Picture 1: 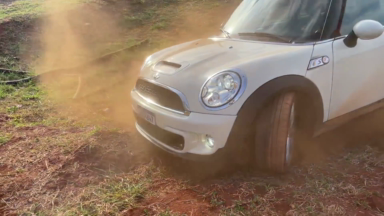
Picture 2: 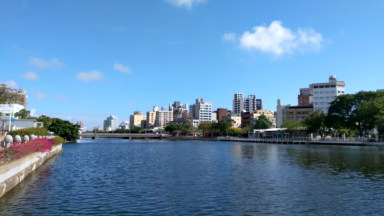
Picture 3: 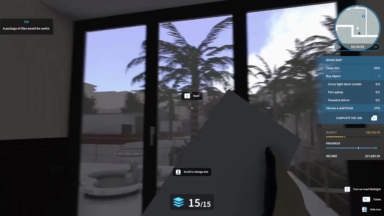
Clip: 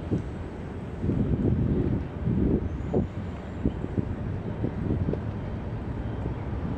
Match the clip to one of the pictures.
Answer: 2